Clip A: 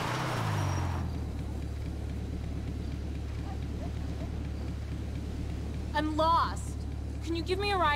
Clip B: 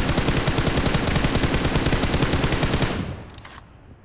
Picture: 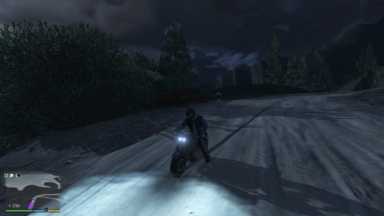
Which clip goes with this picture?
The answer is A